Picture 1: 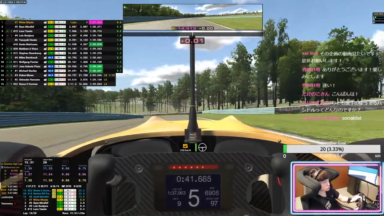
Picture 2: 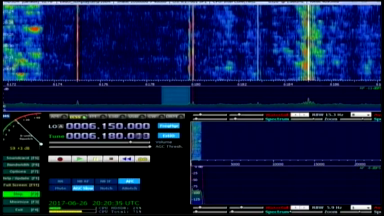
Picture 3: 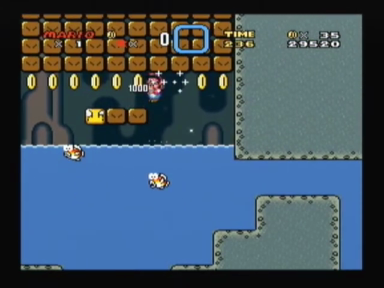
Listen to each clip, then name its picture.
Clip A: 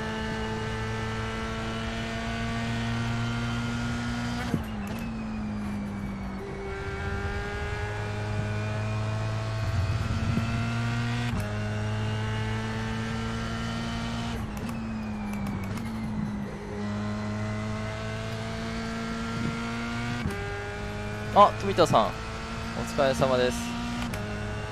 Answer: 1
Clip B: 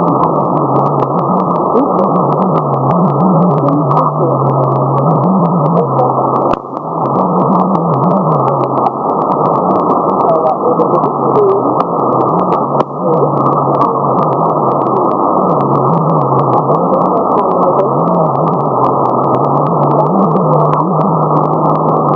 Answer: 2